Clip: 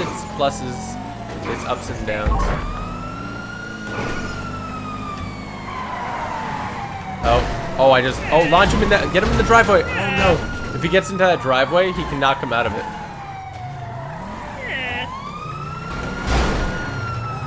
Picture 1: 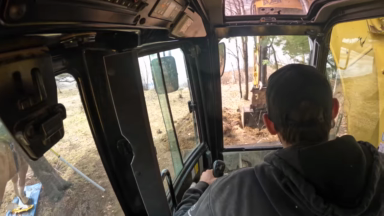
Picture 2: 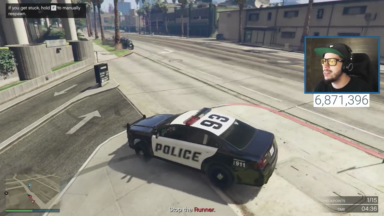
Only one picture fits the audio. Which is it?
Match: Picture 2